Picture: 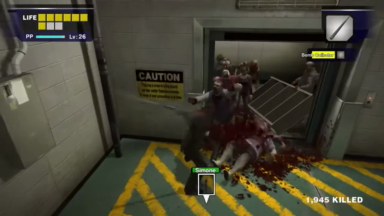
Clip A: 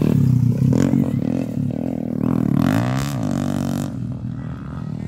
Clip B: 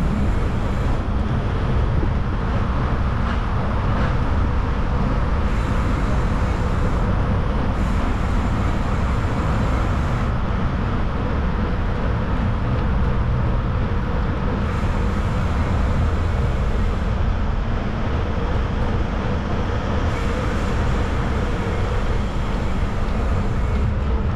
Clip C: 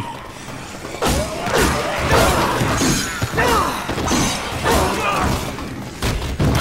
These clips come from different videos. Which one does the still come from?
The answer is C